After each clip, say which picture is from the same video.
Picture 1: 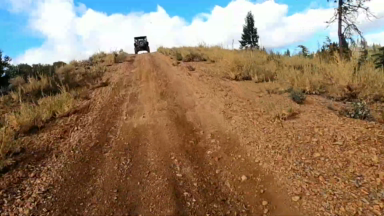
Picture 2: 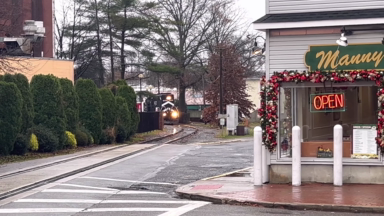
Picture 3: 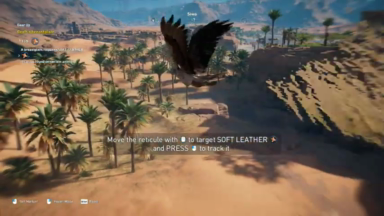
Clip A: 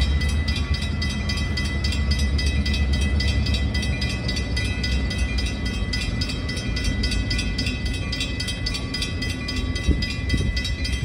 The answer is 2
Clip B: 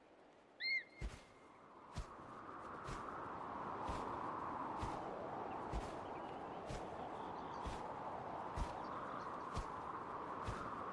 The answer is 3